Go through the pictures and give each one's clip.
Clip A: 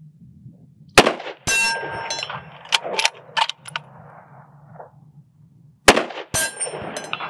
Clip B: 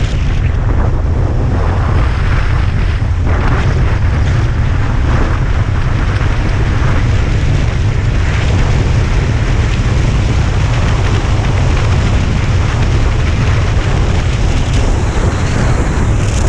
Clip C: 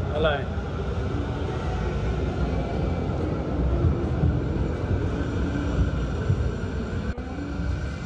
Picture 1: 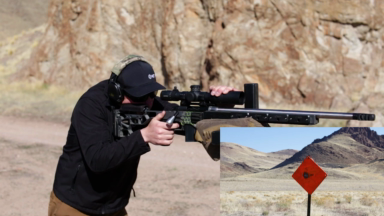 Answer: A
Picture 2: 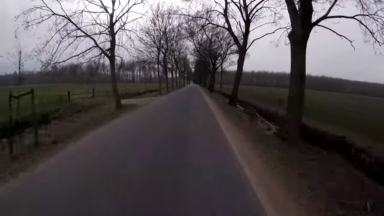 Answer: B